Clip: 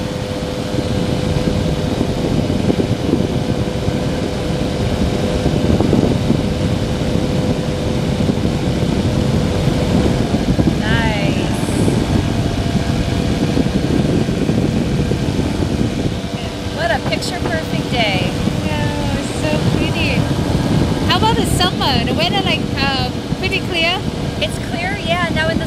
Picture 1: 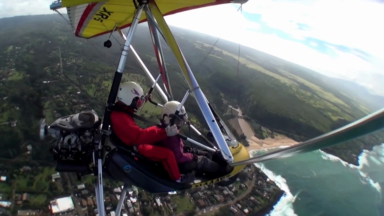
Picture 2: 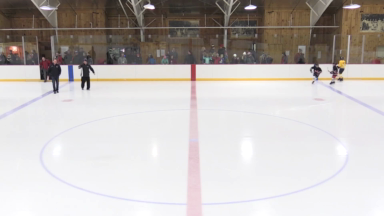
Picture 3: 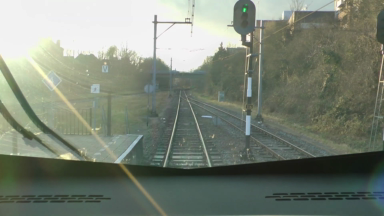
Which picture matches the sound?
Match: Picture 1